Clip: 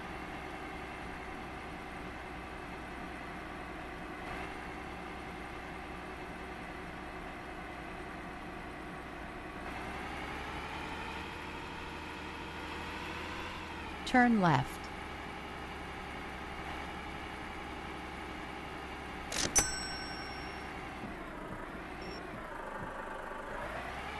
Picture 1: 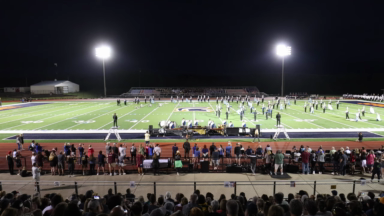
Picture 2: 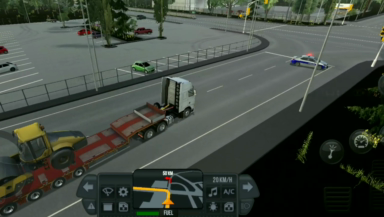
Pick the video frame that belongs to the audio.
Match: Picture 2